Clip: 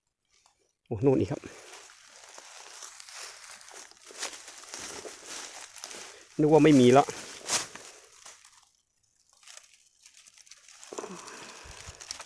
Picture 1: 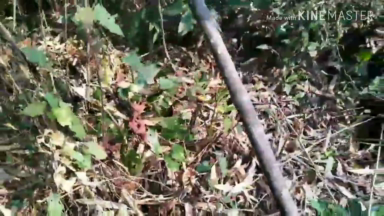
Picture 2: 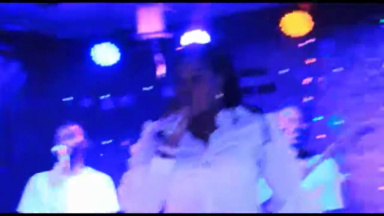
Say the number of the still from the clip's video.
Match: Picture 1